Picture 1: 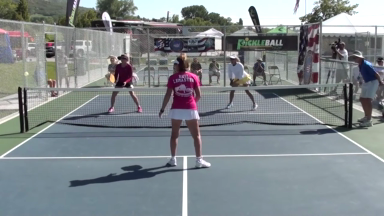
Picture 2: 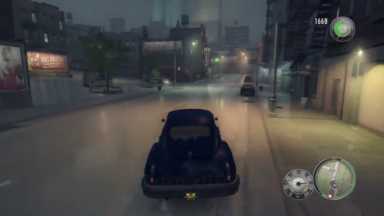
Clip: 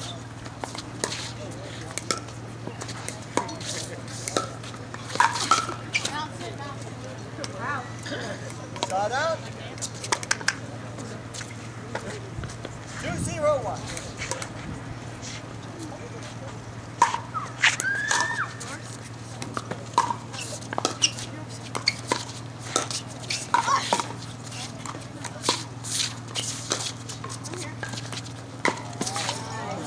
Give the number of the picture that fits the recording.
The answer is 1